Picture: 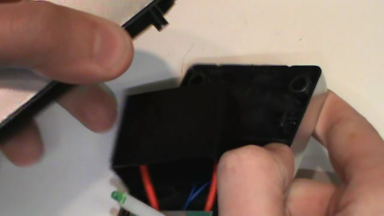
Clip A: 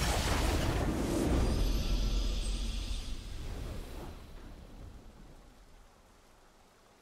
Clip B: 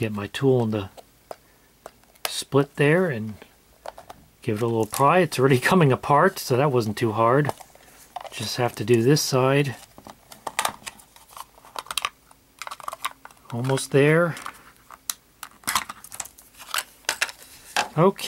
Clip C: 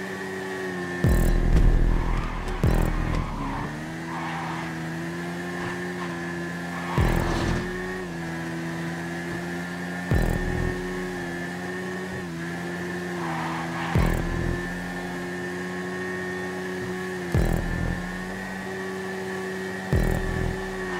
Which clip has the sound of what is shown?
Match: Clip B